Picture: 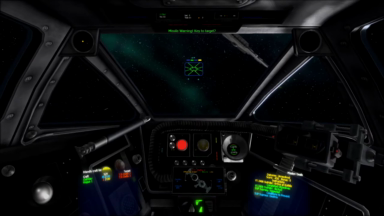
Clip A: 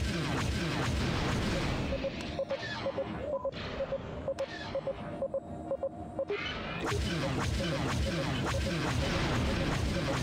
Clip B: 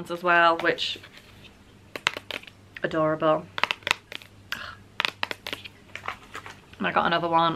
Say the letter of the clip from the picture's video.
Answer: A